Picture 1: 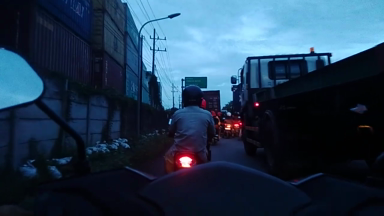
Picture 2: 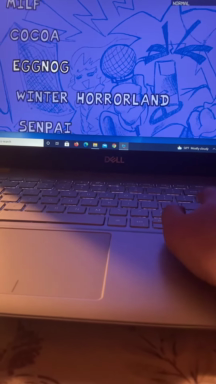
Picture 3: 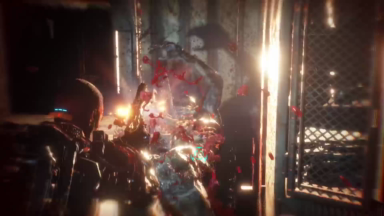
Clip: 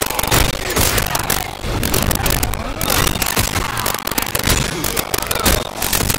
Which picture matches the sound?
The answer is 3